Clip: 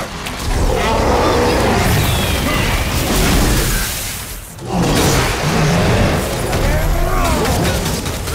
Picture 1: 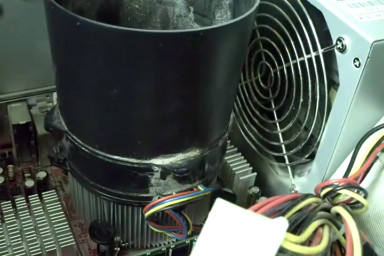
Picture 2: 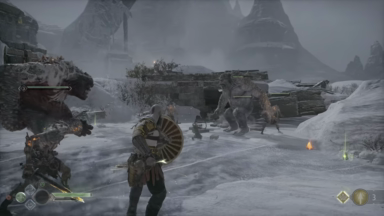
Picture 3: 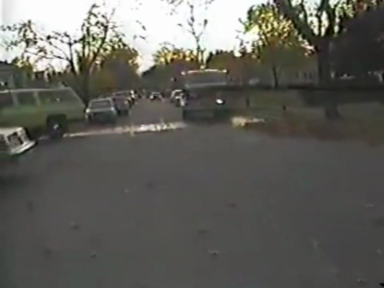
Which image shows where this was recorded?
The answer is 2